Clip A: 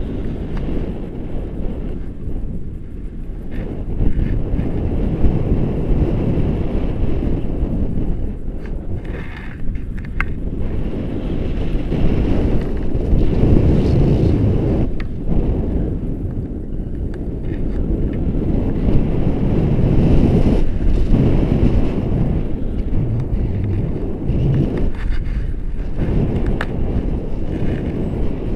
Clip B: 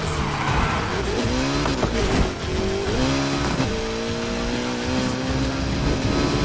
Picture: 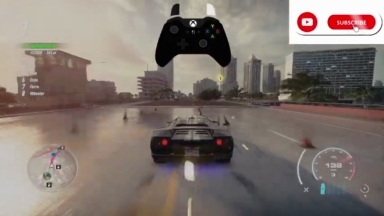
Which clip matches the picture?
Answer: B